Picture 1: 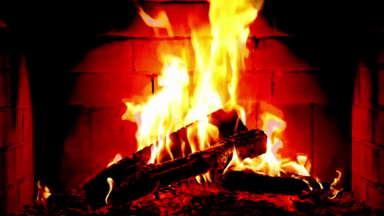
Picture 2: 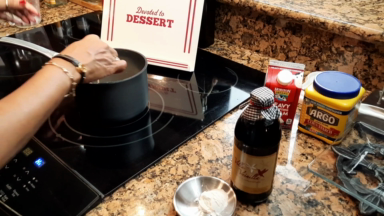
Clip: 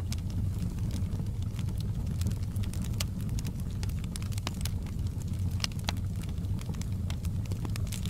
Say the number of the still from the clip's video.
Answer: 1